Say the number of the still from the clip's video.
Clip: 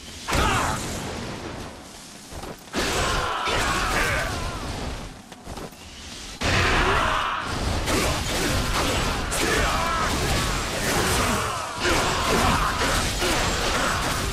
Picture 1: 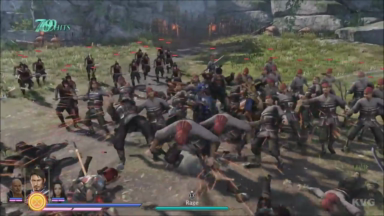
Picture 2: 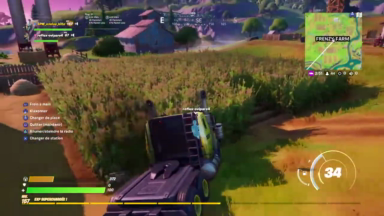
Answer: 1